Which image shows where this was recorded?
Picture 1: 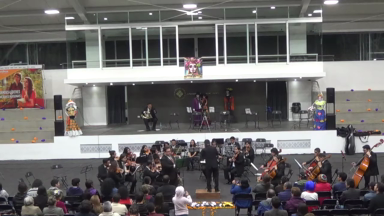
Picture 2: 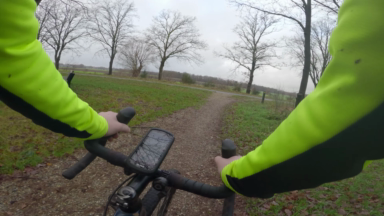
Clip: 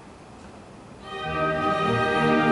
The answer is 1